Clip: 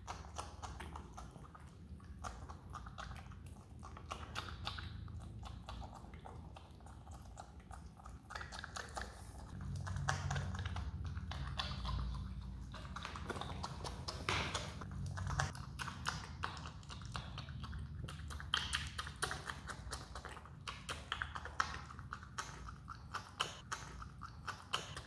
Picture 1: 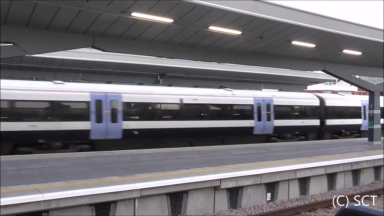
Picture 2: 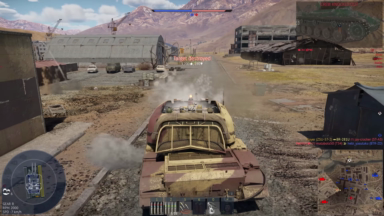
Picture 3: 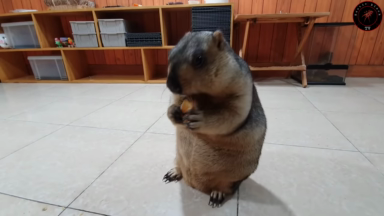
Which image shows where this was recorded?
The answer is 3